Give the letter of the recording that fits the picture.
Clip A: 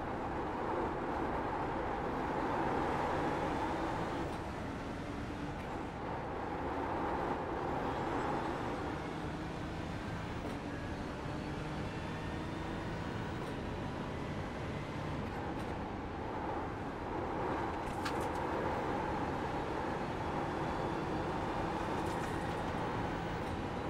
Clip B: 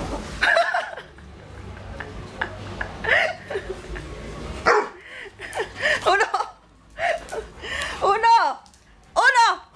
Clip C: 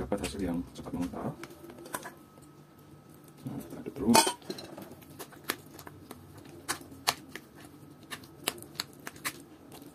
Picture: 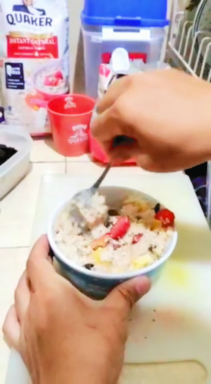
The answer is C